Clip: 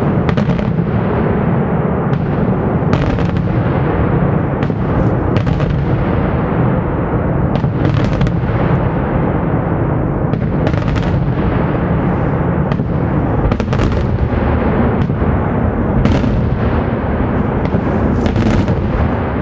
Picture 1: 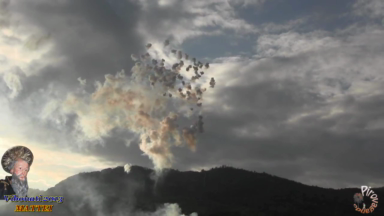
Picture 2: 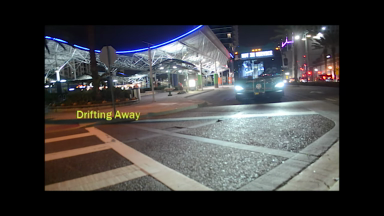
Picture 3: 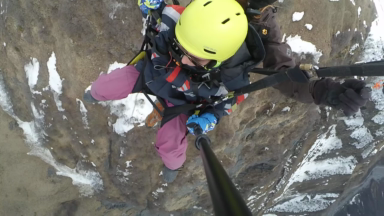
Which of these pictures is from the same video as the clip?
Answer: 1